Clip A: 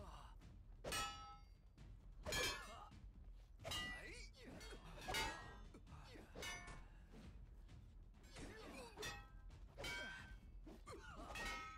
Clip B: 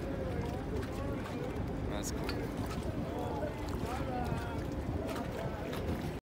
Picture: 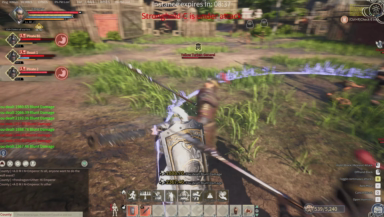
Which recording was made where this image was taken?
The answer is A